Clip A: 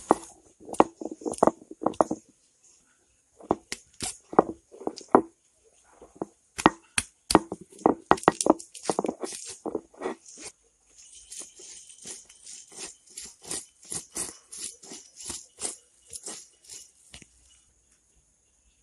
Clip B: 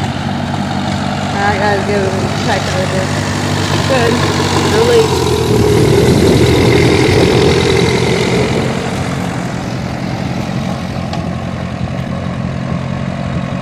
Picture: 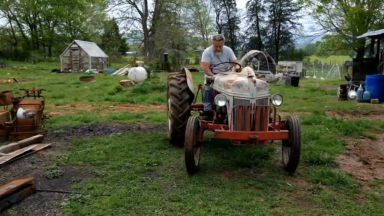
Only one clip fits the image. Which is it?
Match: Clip B